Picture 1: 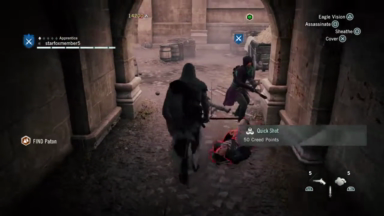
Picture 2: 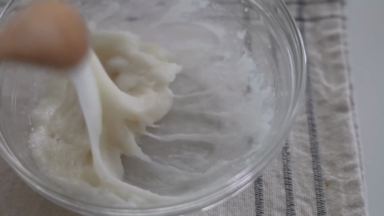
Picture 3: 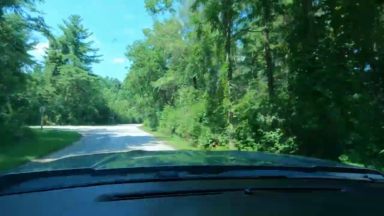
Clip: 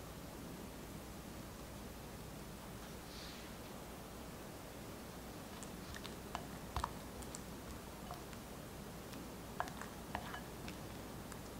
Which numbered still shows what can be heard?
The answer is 2